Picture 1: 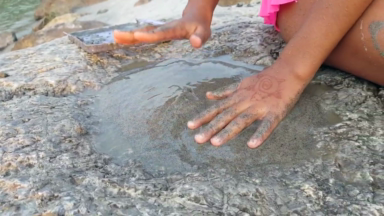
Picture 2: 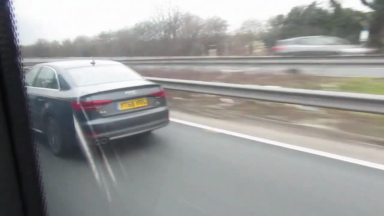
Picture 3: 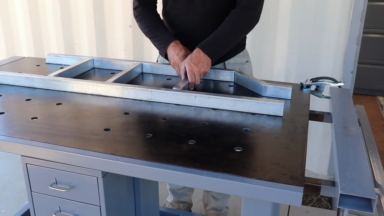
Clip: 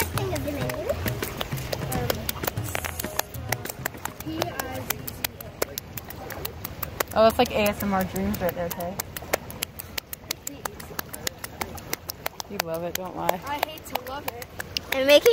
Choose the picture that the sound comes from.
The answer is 1